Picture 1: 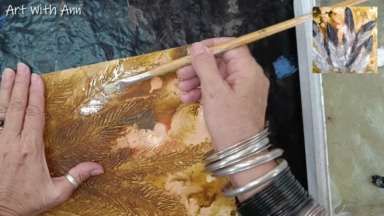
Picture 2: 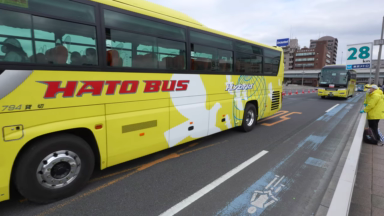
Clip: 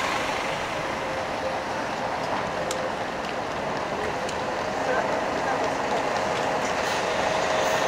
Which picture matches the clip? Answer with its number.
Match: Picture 2